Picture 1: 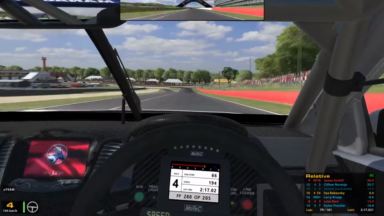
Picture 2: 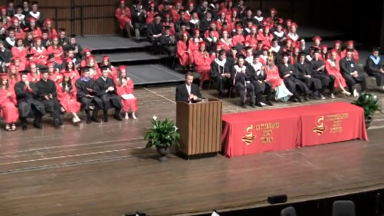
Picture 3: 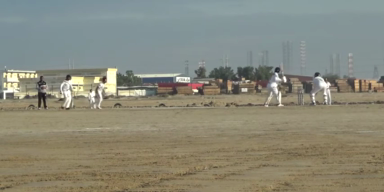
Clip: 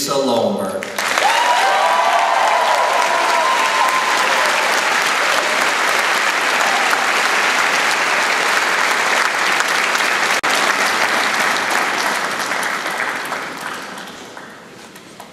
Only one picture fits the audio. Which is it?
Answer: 2